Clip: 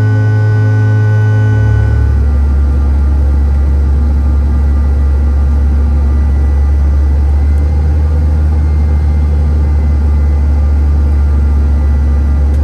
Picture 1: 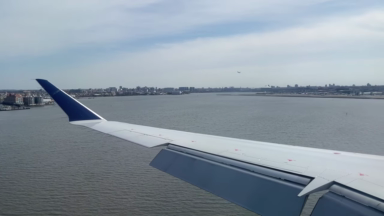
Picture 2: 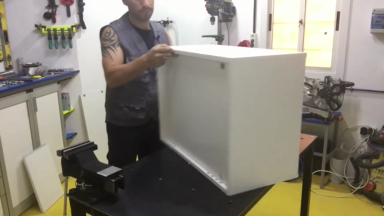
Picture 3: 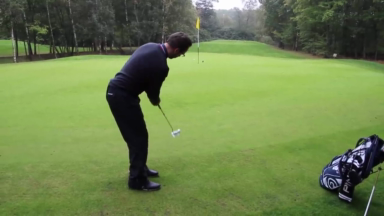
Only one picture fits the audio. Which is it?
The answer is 1